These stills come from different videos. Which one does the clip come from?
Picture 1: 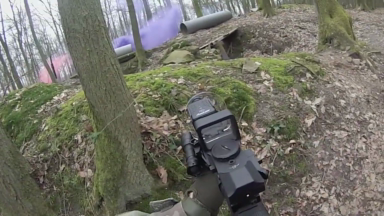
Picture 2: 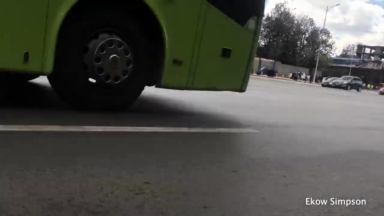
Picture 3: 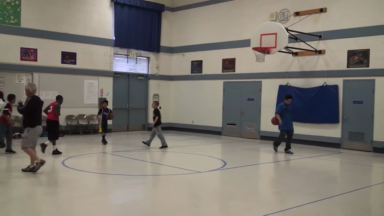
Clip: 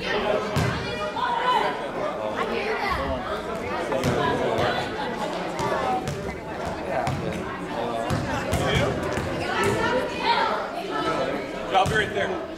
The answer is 3